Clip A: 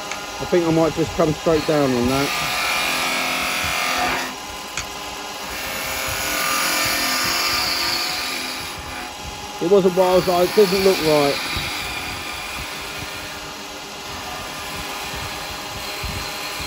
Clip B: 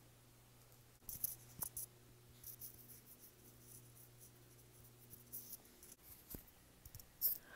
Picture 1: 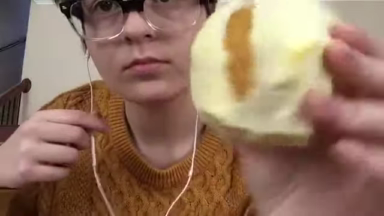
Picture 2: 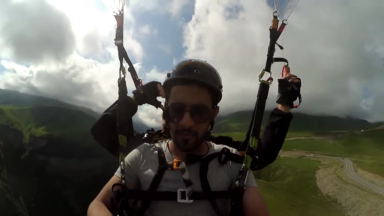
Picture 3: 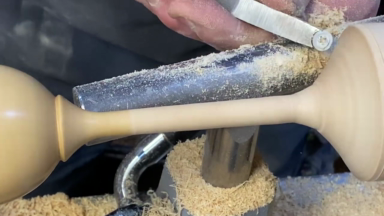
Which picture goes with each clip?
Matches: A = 3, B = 1